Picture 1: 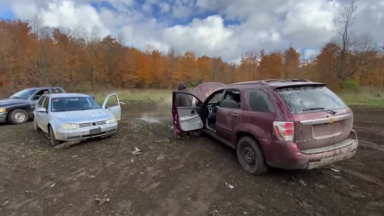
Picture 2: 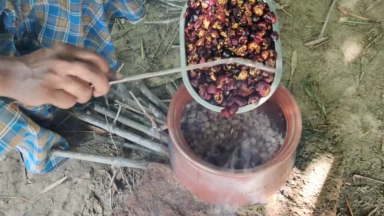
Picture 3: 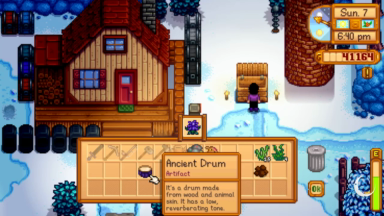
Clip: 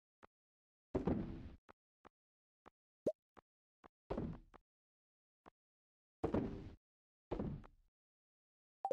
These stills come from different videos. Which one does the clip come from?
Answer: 3